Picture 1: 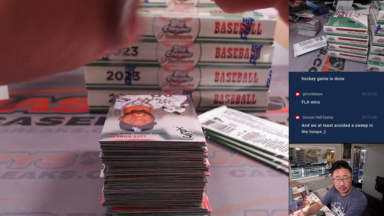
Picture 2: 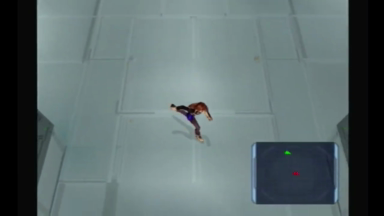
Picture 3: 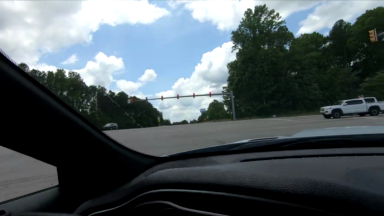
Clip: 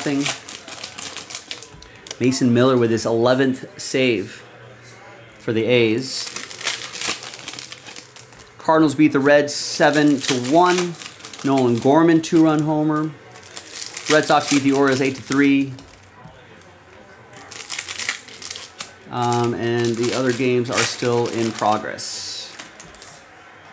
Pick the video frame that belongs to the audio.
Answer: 1